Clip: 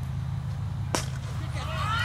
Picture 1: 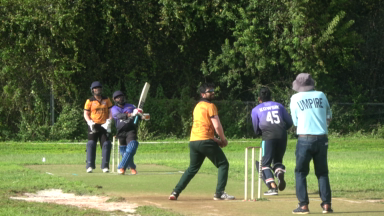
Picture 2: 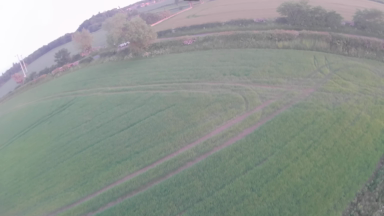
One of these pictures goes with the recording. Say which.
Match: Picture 1